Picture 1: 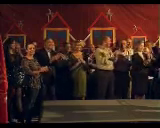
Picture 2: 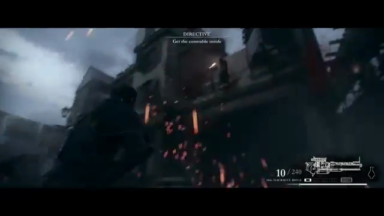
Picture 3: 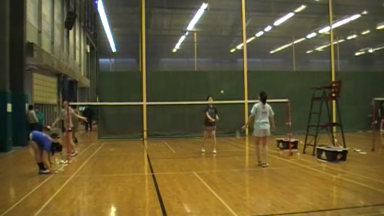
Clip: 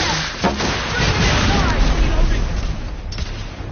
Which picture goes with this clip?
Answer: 2